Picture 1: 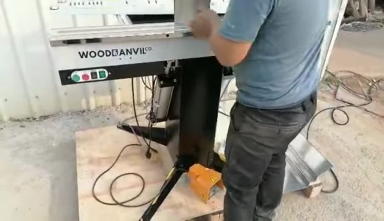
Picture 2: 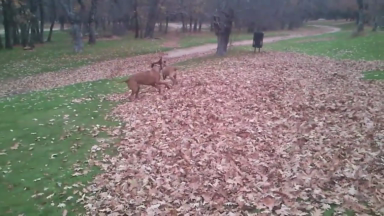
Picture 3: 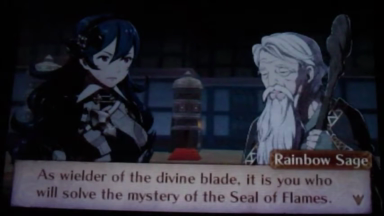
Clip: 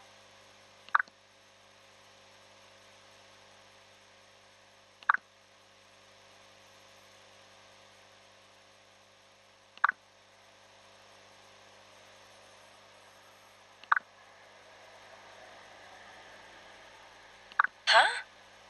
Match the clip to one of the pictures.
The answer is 3